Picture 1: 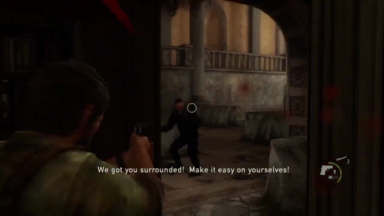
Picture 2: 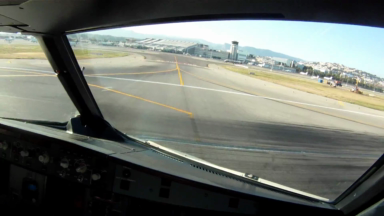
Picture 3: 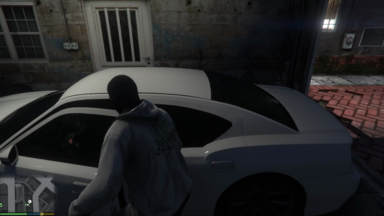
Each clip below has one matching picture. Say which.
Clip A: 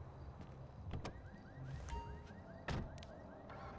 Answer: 3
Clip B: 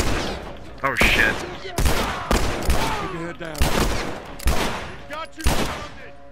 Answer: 1